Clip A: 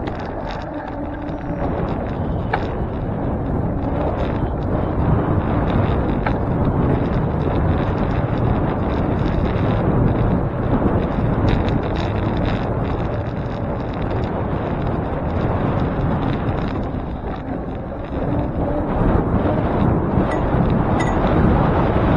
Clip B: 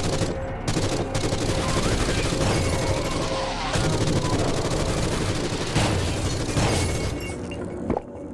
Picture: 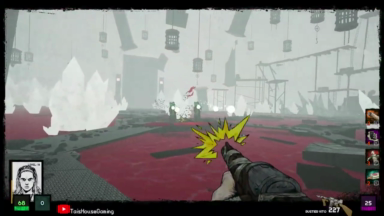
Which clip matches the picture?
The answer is B